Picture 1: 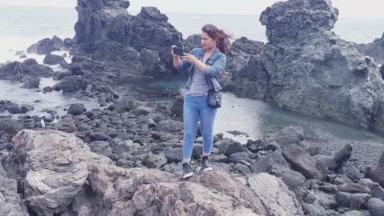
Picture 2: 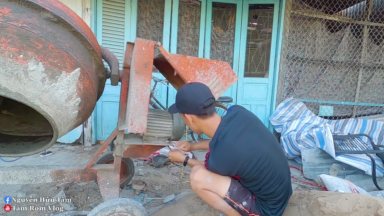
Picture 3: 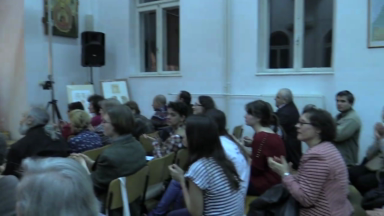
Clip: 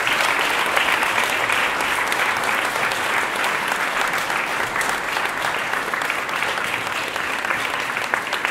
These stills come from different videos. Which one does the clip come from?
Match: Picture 3